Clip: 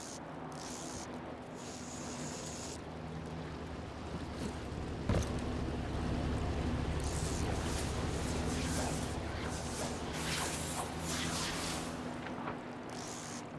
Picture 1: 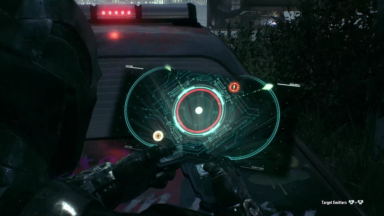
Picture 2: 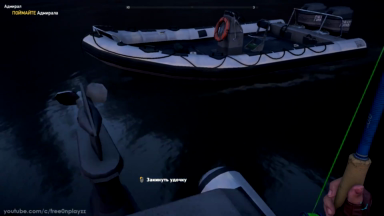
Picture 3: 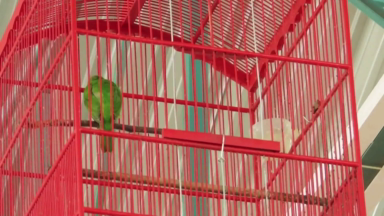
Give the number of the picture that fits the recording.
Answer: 2